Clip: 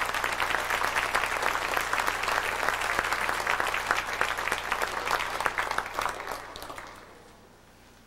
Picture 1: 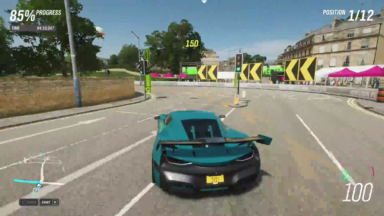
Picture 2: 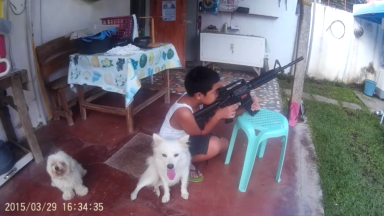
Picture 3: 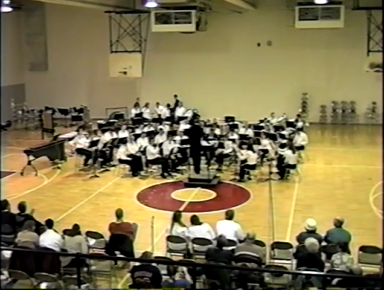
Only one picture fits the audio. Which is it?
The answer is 3